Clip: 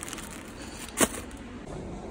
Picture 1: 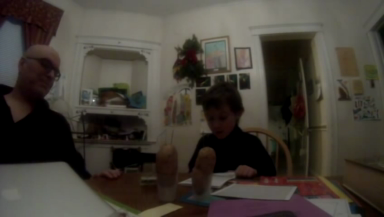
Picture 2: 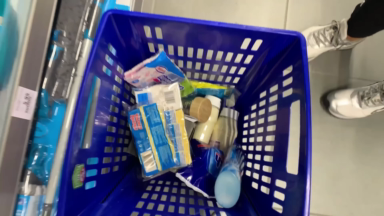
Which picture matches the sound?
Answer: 2